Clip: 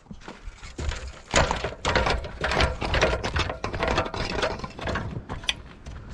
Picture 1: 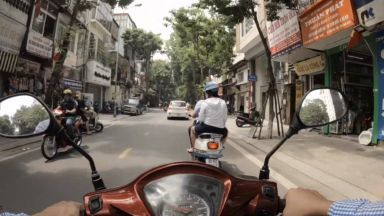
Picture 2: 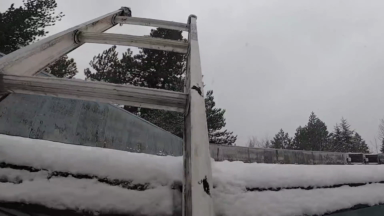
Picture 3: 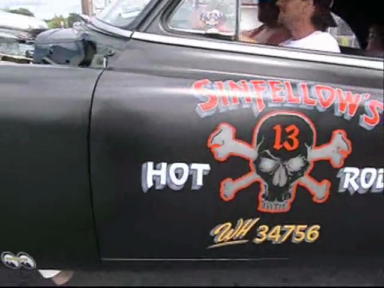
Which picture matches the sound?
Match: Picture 2